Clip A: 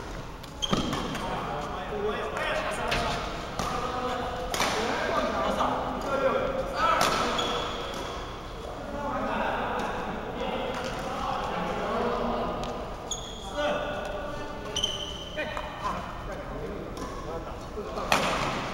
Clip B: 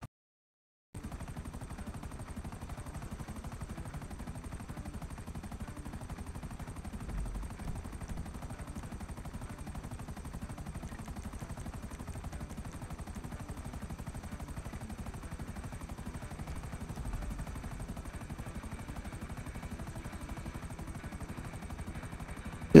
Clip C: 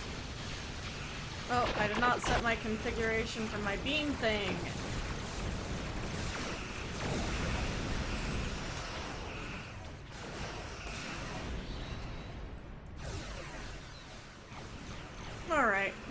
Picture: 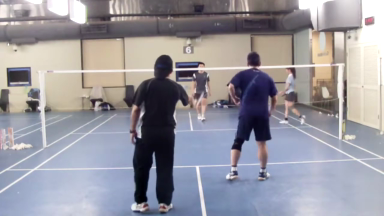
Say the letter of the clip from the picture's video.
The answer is A